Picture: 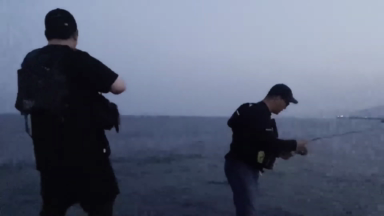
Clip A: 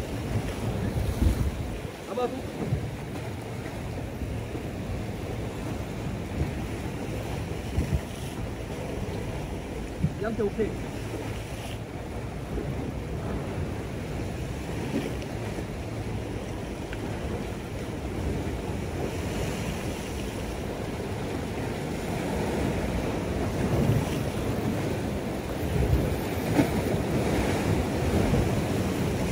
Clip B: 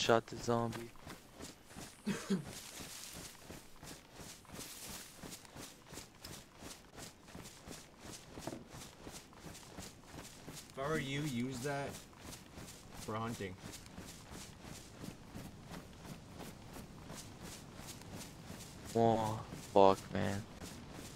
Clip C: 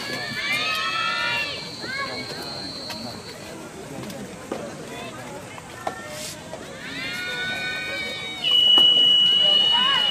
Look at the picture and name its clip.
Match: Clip A